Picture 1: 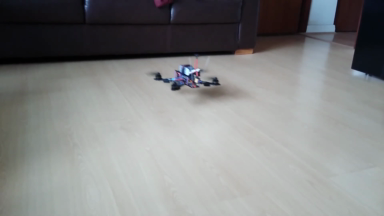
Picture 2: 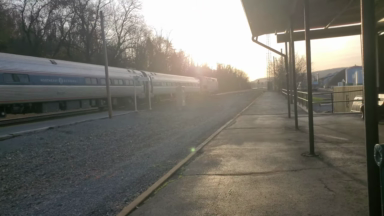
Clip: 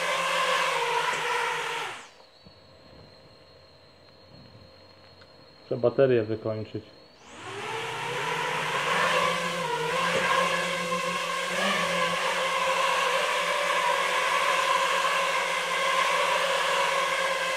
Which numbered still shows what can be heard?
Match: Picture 1